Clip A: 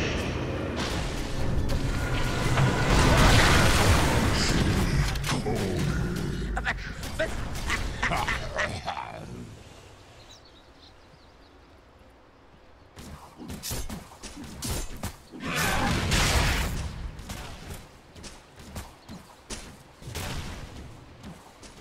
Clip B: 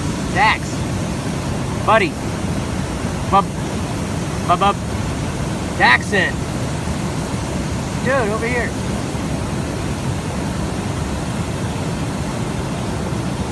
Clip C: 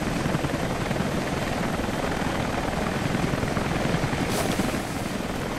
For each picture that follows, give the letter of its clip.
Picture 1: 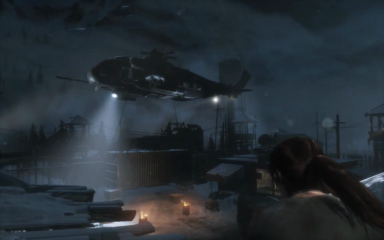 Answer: C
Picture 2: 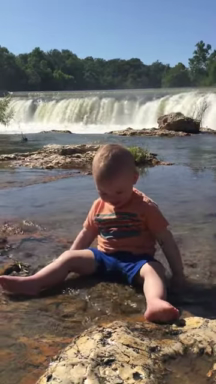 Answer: B